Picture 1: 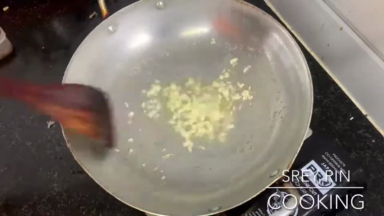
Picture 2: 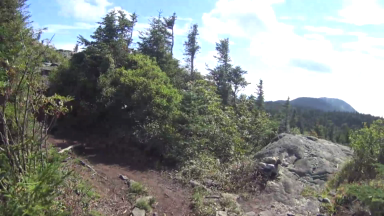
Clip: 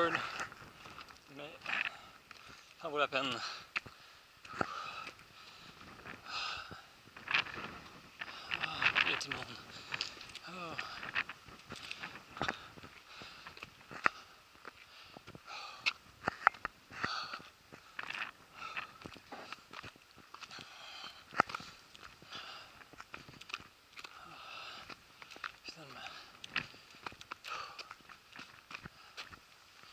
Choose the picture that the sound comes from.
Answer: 2